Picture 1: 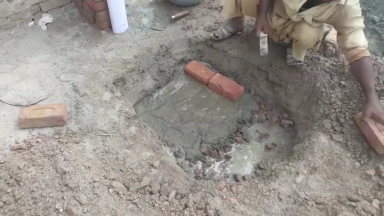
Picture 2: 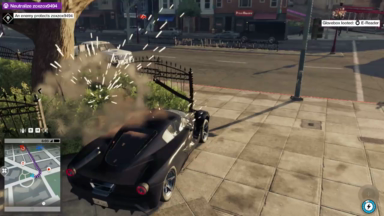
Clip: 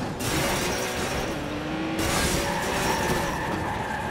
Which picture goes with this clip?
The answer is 2